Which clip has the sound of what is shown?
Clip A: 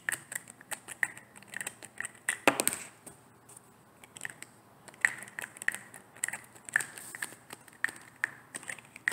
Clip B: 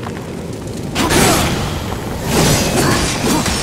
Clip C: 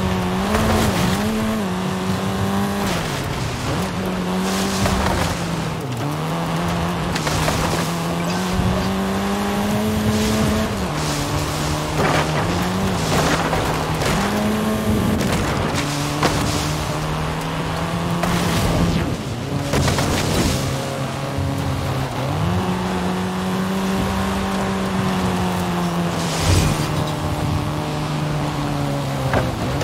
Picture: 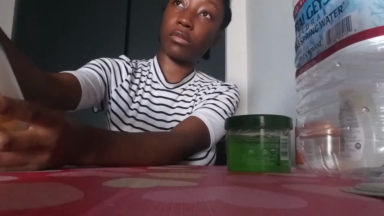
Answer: A